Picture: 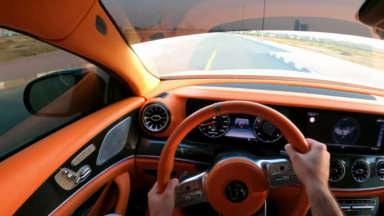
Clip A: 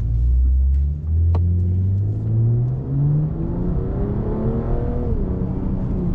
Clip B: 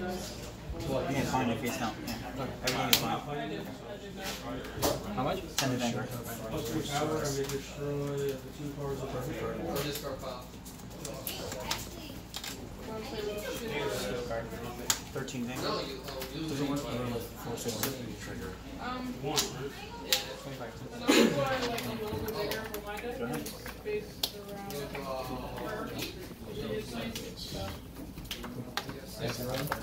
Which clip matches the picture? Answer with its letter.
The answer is A